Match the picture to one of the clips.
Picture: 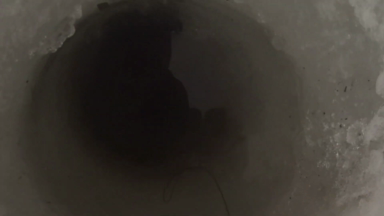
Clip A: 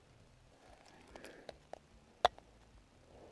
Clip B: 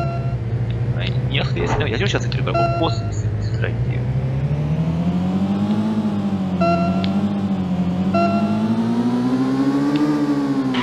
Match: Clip A